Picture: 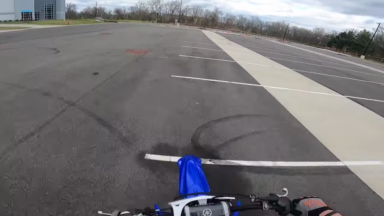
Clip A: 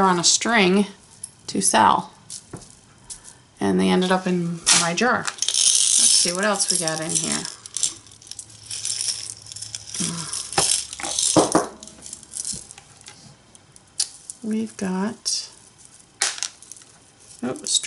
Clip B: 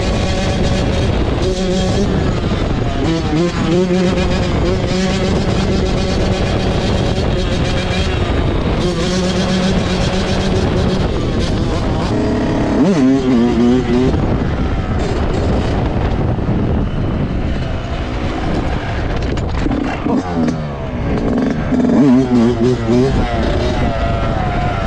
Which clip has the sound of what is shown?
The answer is B